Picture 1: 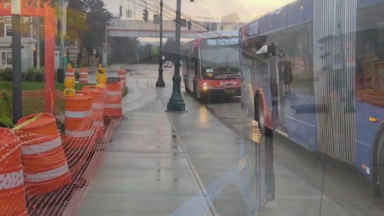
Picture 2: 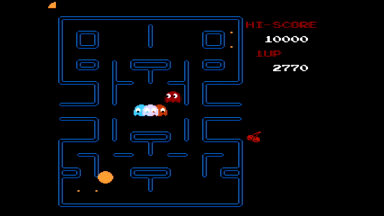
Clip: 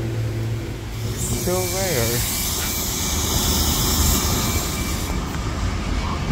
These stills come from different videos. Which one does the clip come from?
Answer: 1